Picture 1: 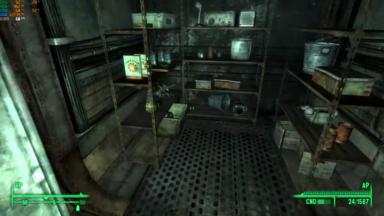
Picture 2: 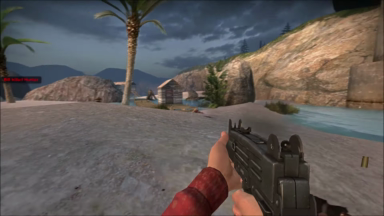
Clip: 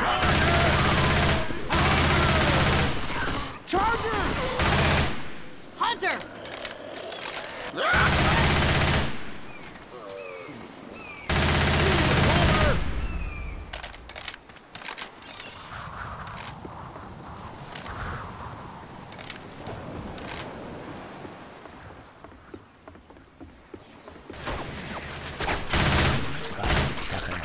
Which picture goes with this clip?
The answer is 2